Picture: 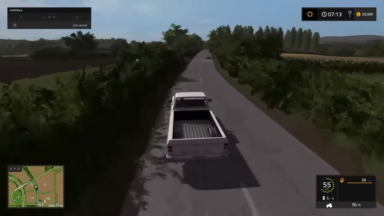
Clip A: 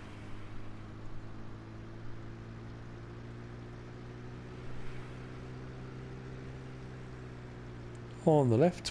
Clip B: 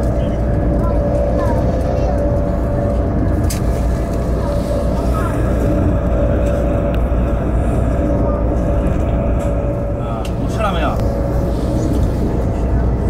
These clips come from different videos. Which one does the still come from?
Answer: A